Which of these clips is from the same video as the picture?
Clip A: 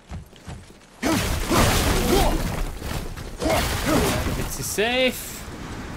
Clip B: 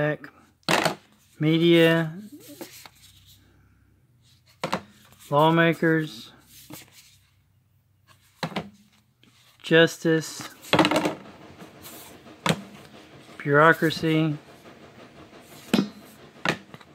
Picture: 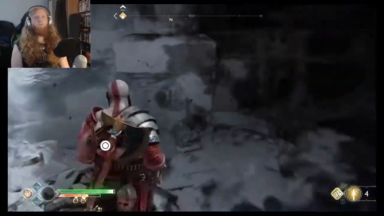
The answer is A